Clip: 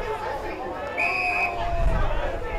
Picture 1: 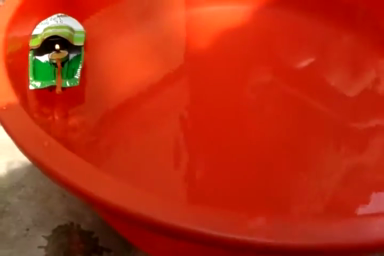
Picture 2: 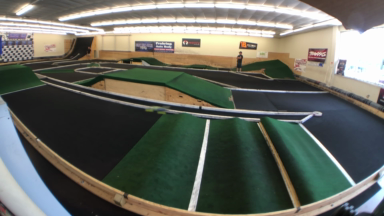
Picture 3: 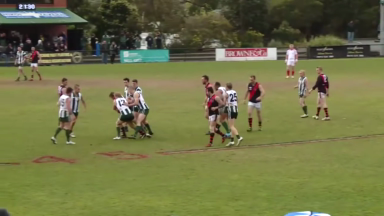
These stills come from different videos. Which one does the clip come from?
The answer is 3